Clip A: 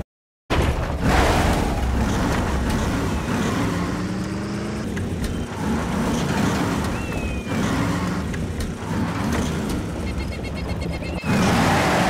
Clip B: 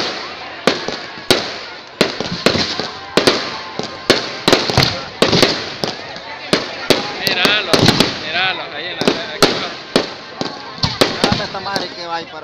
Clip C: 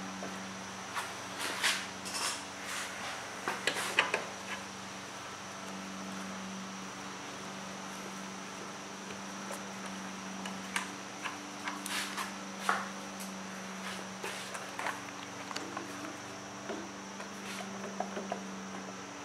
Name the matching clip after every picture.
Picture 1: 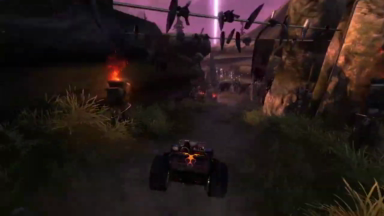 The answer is A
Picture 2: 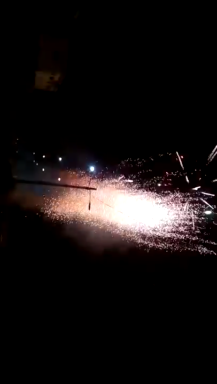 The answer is B